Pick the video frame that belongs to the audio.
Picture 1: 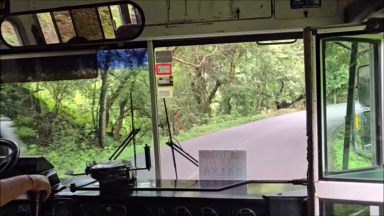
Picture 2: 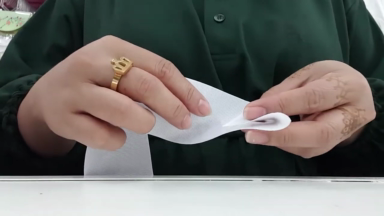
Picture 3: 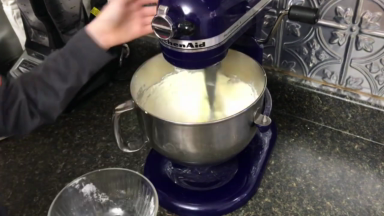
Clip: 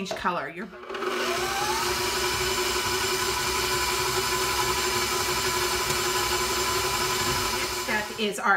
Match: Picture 3